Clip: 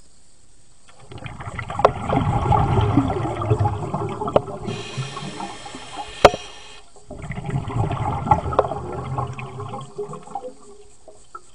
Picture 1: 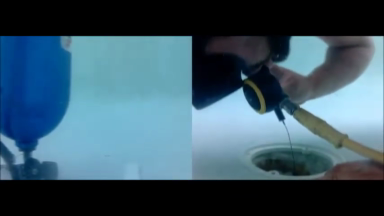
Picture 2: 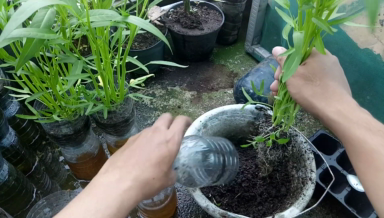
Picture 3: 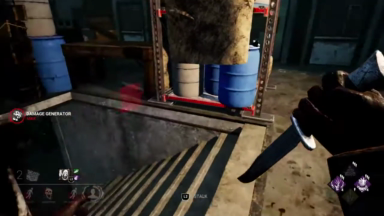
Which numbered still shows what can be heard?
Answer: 1